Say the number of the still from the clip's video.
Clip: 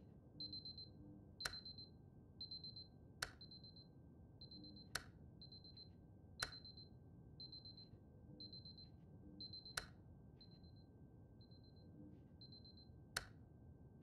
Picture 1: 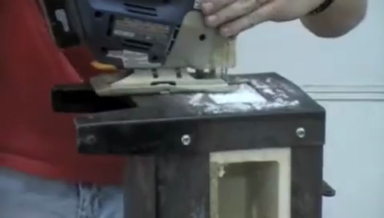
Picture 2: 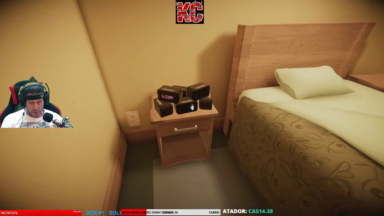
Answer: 2